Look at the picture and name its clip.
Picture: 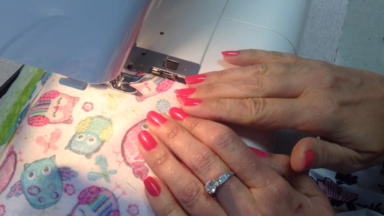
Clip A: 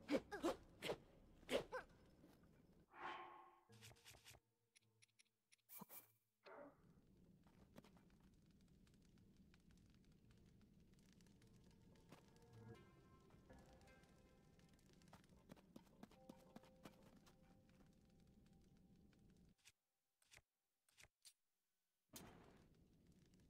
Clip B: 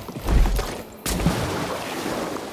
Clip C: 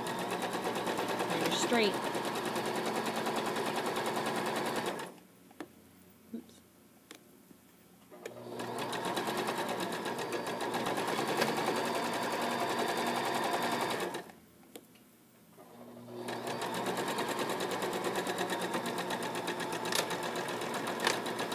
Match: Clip C